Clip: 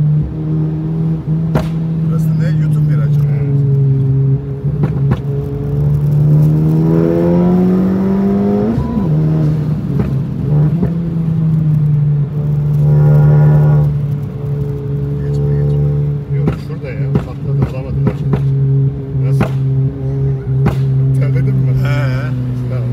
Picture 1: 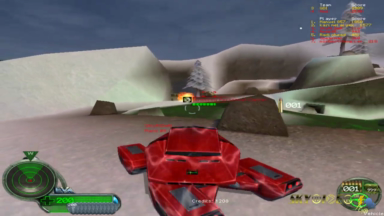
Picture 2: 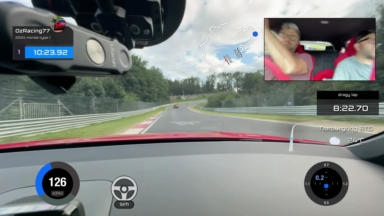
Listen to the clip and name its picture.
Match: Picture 2